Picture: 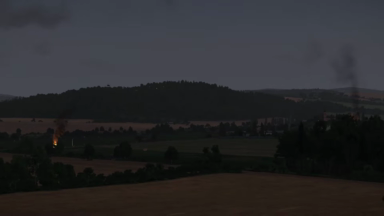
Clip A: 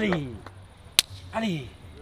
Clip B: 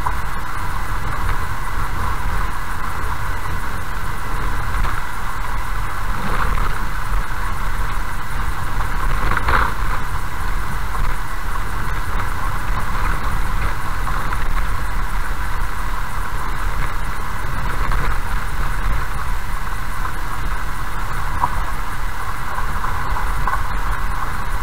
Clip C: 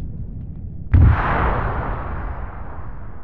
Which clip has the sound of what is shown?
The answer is C